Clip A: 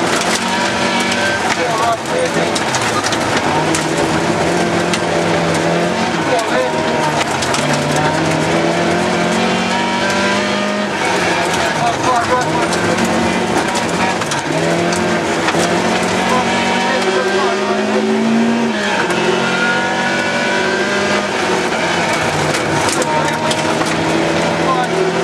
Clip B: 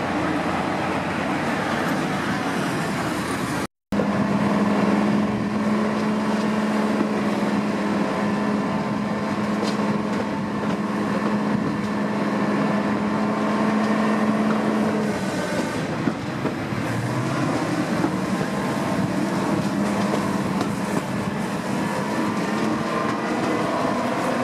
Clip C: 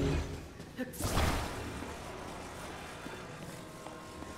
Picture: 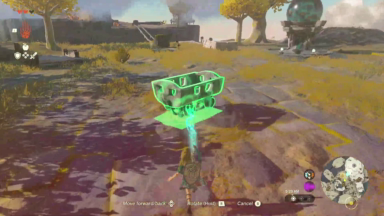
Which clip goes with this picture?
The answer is C